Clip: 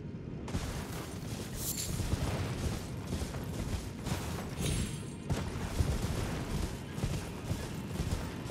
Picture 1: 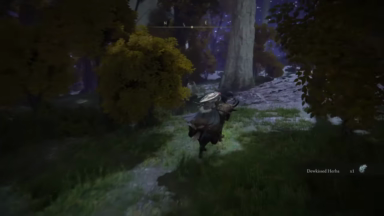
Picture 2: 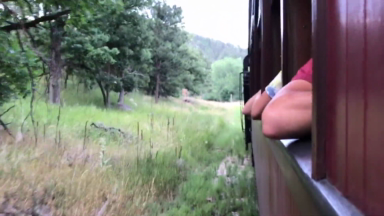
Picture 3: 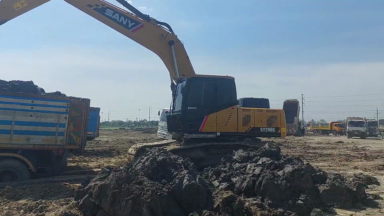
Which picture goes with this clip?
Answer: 1